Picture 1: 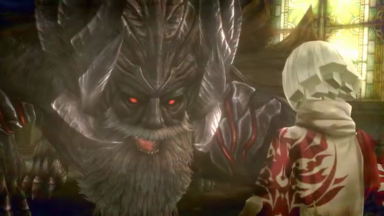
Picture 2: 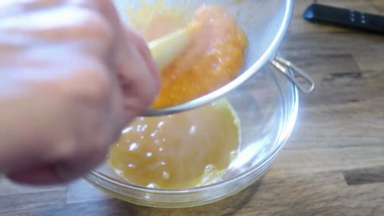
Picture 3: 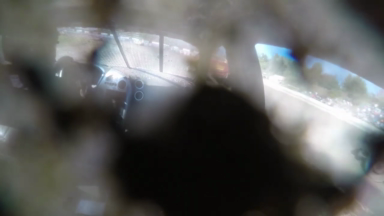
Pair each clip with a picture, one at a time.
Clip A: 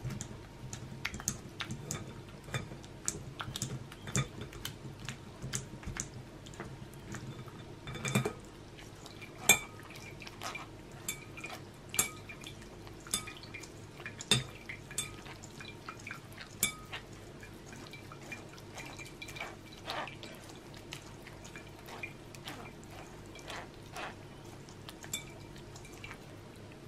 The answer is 2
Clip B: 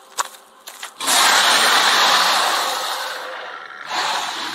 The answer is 1